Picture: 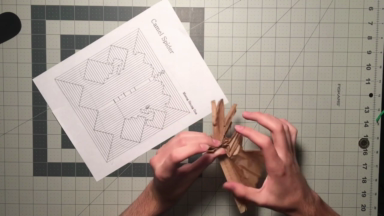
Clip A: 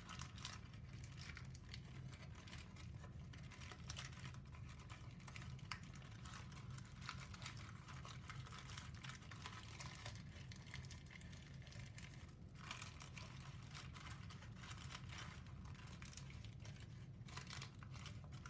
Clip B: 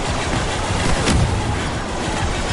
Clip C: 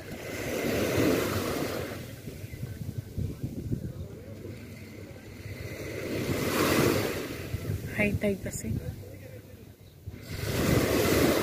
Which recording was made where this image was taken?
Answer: A